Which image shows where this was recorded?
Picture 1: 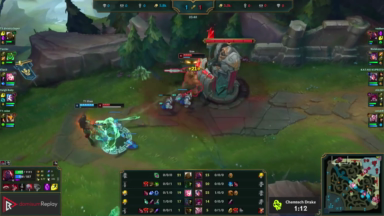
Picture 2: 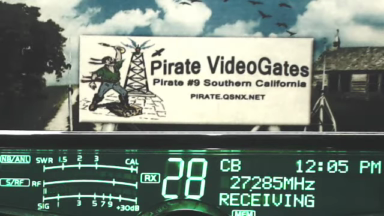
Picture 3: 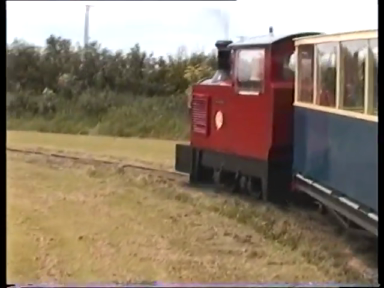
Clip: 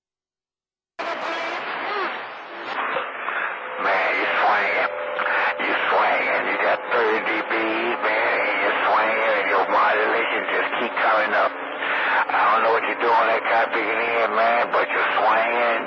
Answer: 2